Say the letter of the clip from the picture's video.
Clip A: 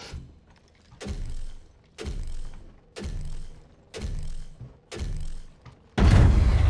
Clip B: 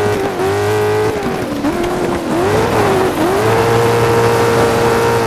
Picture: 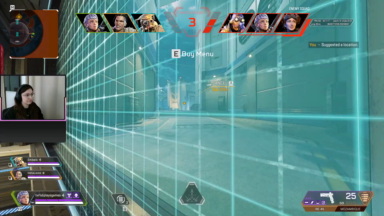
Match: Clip A